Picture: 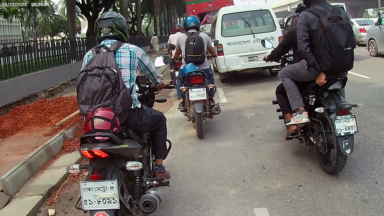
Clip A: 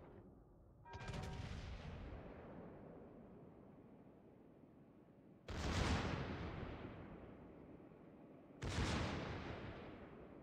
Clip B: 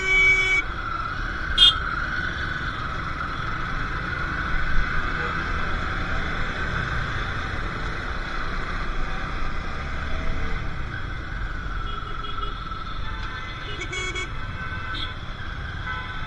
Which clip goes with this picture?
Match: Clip B